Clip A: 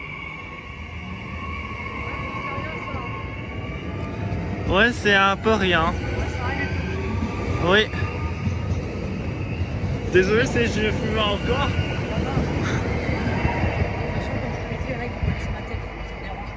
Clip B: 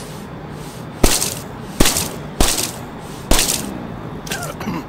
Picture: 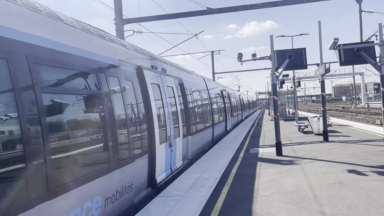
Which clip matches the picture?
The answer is A